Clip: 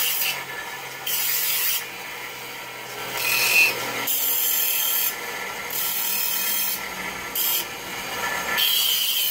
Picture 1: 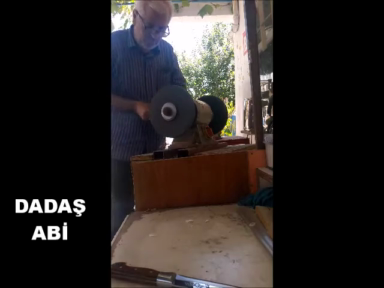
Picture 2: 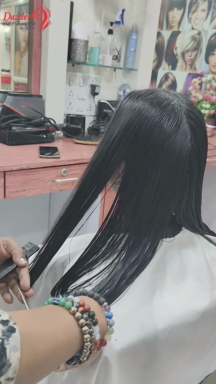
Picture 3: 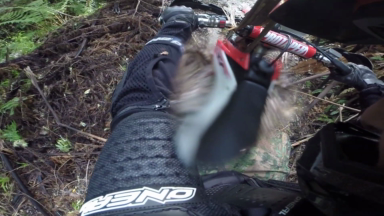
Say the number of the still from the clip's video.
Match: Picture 1